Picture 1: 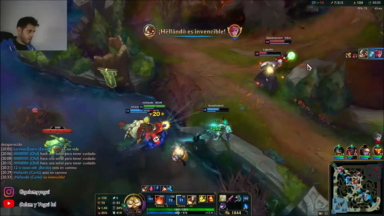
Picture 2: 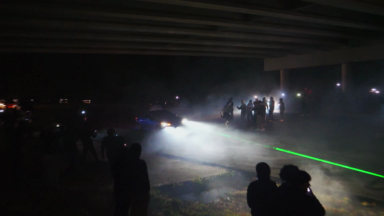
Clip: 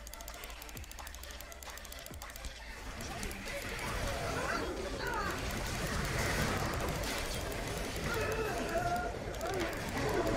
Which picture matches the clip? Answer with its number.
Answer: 1